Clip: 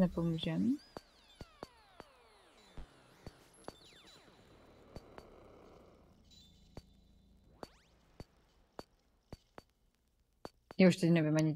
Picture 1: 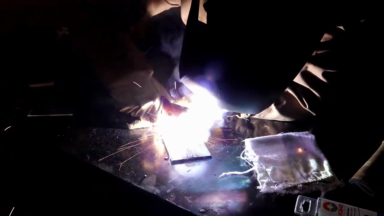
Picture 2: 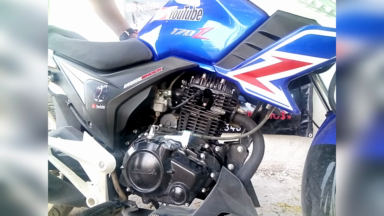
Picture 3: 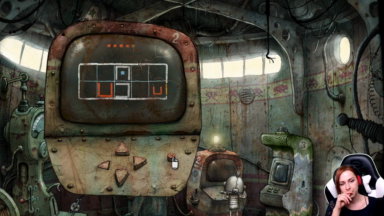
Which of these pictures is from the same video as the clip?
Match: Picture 3